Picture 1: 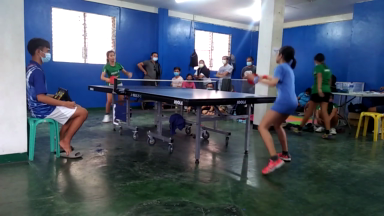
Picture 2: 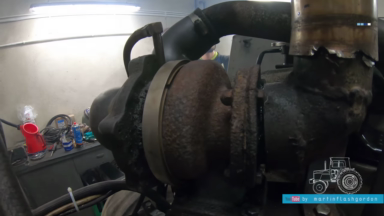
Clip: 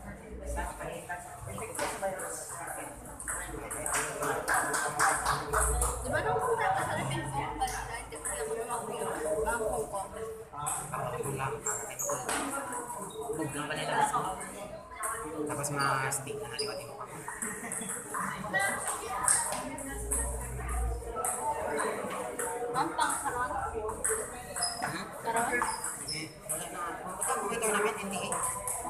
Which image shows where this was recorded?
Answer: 1